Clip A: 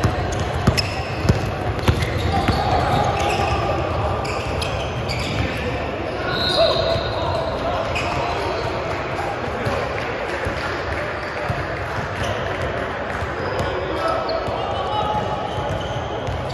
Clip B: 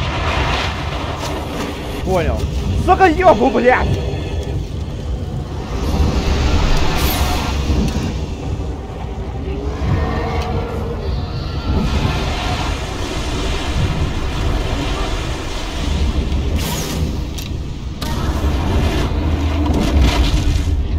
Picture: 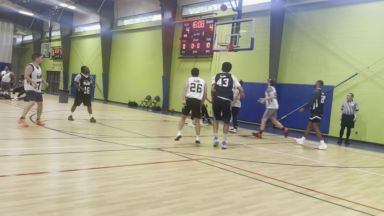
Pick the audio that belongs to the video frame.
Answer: A